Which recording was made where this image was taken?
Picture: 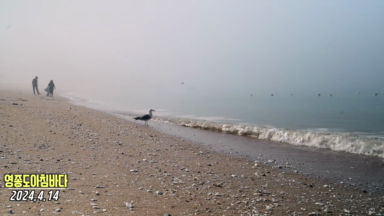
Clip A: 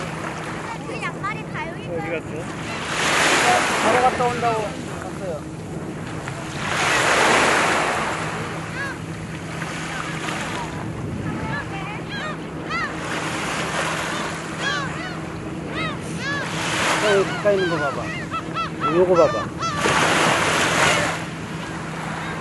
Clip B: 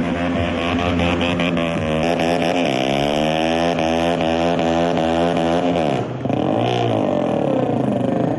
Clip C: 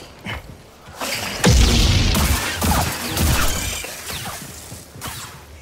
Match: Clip A